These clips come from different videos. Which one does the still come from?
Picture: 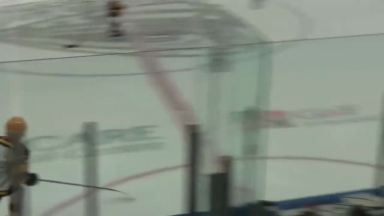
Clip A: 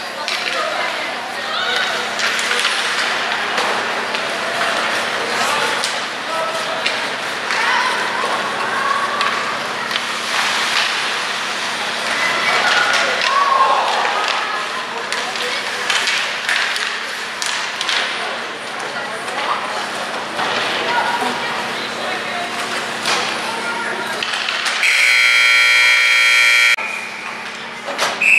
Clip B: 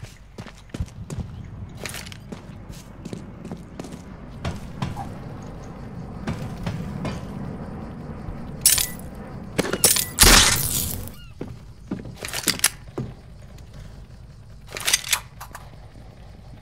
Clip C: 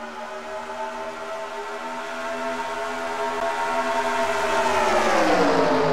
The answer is A